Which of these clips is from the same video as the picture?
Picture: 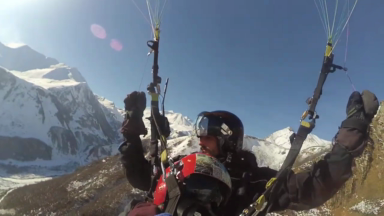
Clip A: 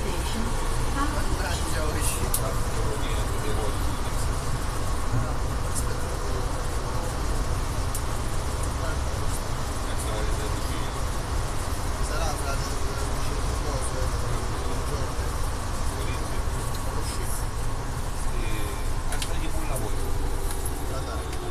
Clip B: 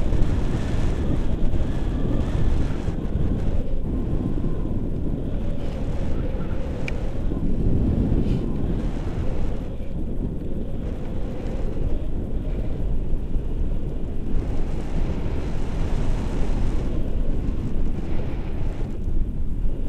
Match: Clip B